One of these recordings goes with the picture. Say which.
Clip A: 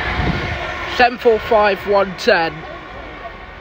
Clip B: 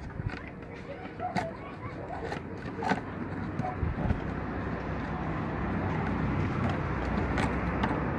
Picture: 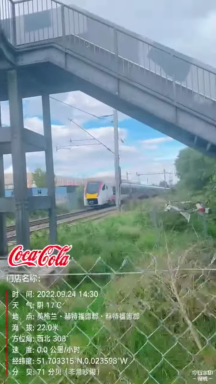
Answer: A